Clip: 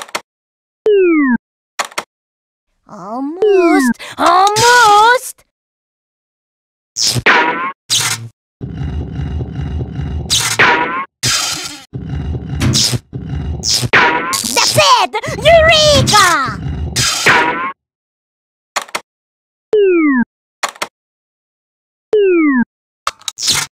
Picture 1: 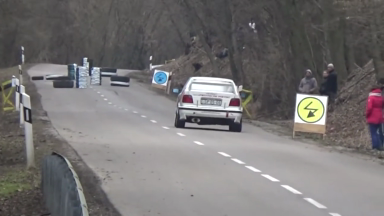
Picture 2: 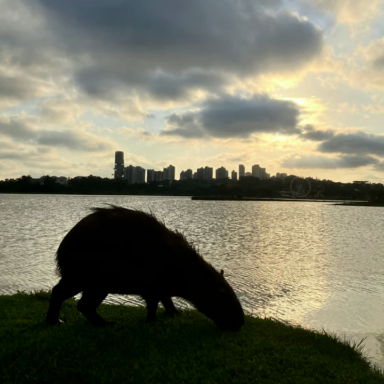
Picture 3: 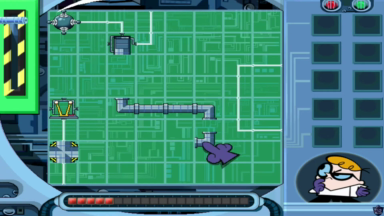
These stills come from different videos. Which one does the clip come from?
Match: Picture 3